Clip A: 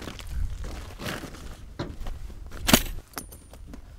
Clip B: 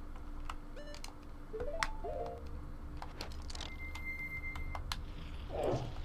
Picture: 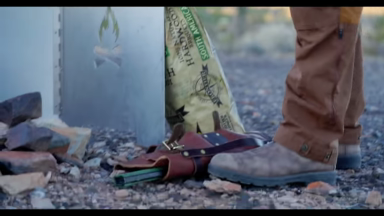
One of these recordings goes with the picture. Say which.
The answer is A